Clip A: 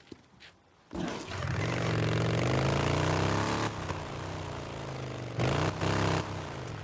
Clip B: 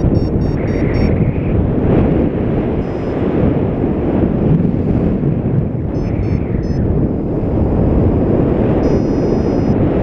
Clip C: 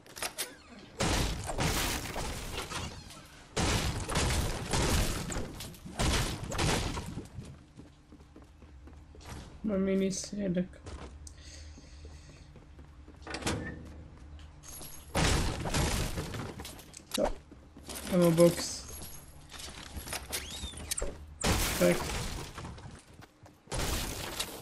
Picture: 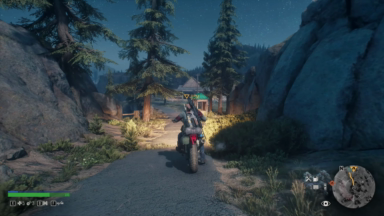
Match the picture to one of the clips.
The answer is A